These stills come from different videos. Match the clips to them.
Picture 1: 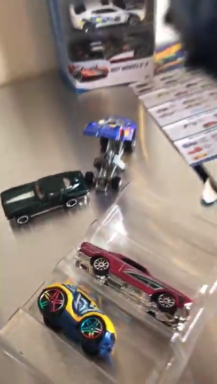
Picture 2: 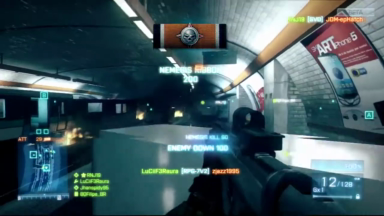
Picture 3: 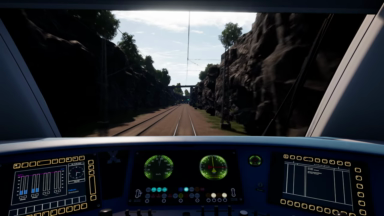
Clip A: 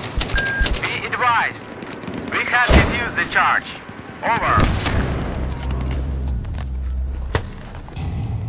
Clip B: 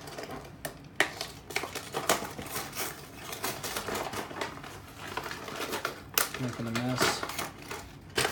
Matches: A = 2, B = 1